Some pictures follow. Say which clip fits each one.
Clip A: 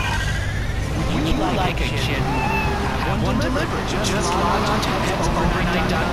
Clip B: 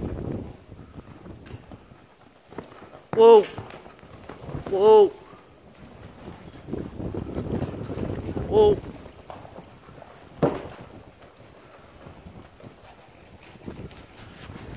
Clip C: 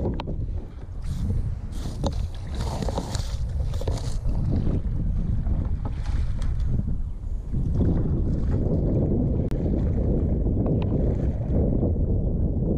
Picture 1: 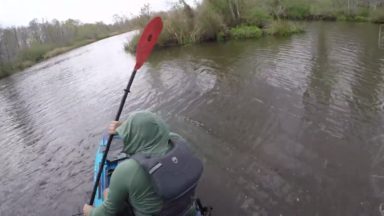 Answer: C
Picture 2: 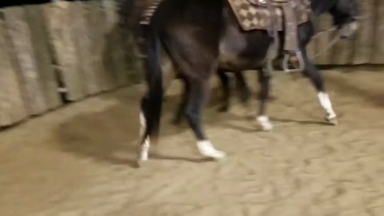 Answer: B